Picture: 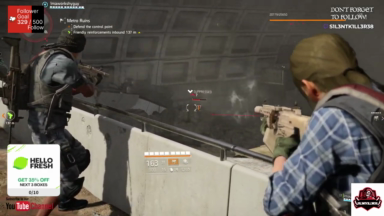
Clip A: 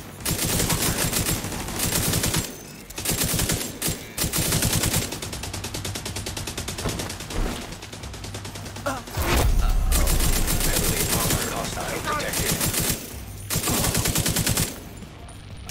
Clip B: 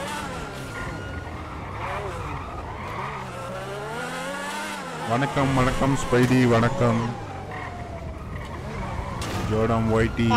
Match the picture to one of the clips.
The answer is A